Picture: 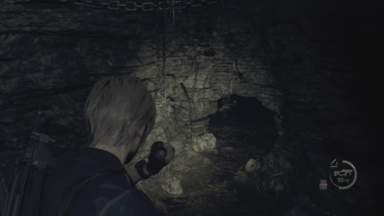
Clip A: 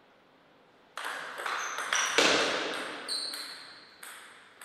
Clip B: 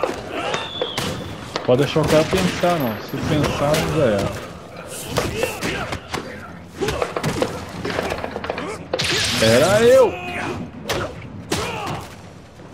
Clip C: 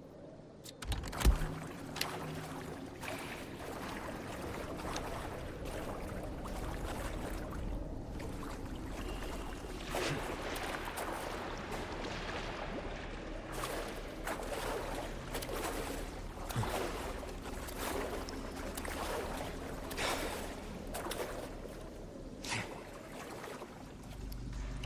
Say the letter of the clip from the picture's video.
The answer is C